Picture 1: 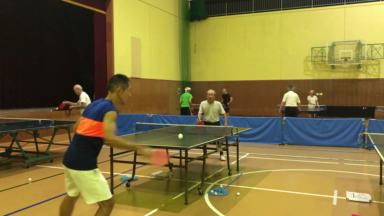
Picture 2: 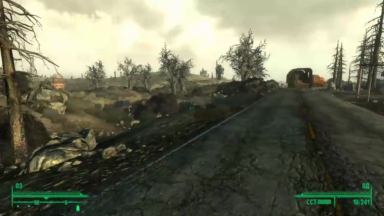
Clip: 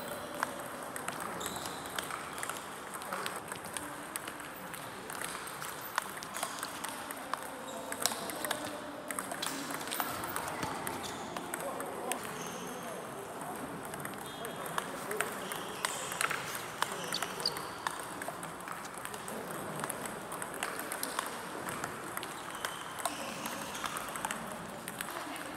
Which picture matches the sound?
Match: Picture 1